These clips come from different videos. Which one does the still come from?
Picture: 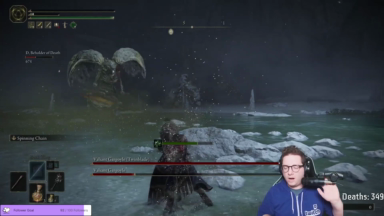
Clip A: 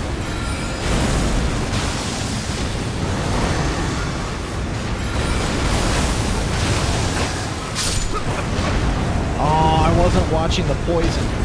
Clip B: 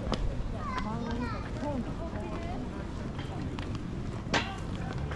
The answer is A